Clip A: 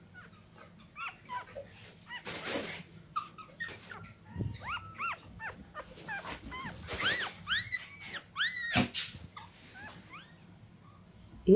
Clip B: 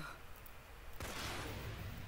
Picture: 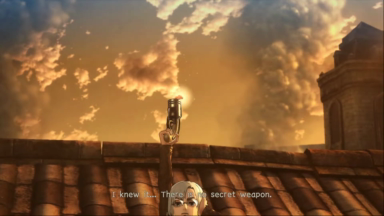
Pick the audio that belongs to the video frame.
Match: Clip B